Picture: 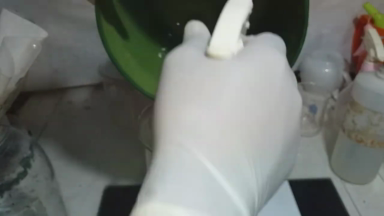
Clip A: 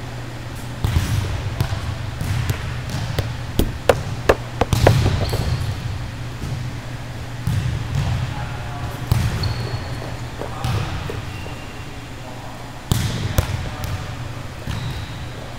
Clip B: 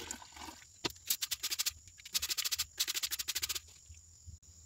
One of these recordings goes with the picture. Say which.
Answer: B